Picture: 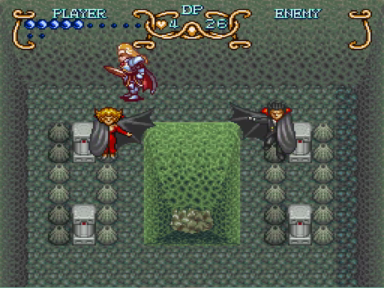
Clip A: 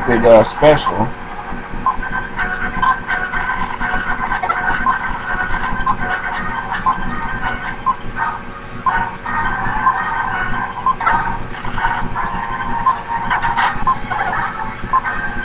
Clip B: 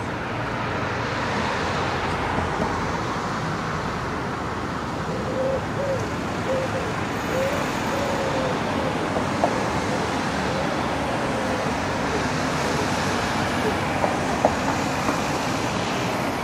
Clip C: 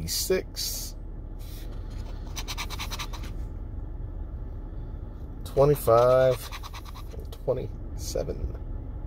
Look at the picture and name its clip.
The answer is A